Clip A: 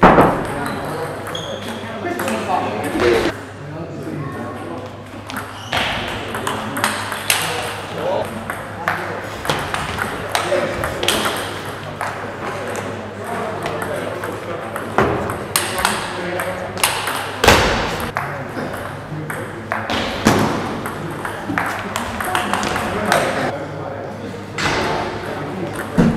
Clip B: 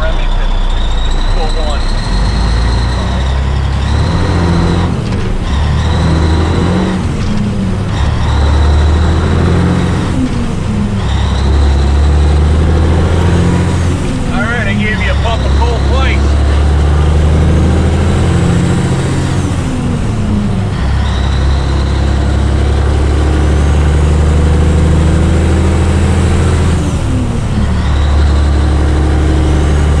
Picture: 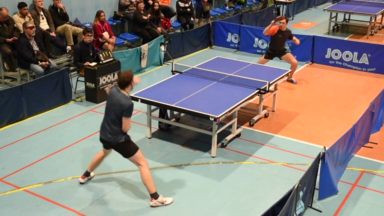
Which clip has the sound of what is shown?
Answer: A